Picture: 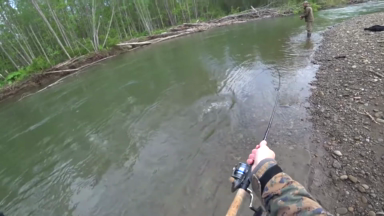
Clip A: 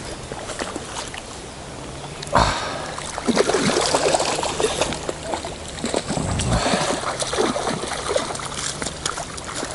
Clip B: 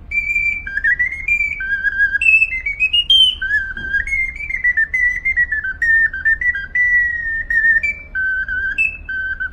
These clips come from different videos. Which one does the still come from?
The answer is A